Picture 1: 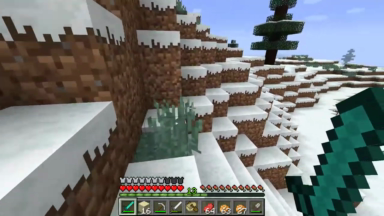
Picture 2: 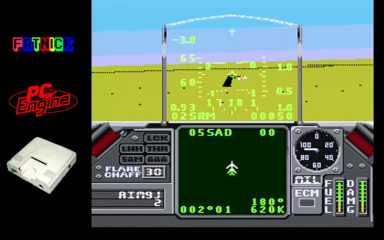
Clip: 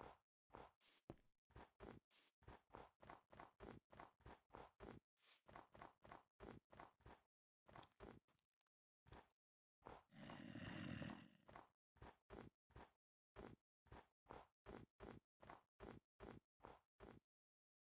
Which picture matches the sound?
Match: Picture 1